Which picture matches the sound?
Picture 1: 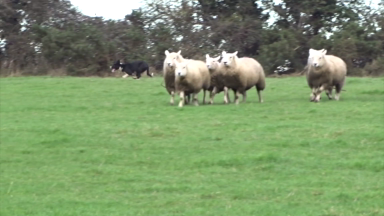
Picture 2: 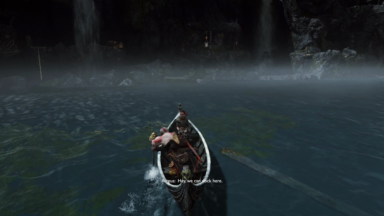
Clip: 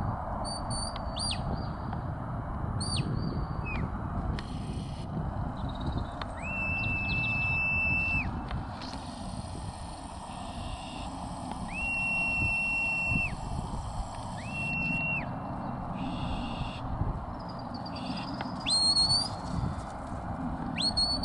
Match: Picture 1